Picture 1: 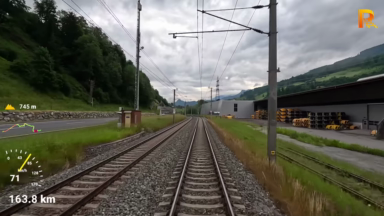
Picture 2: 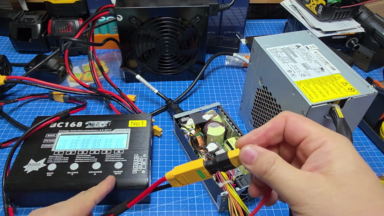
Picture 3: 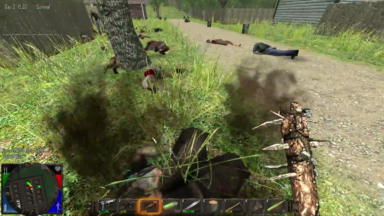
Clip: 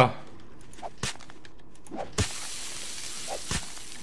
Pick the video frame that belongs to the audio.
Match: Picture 3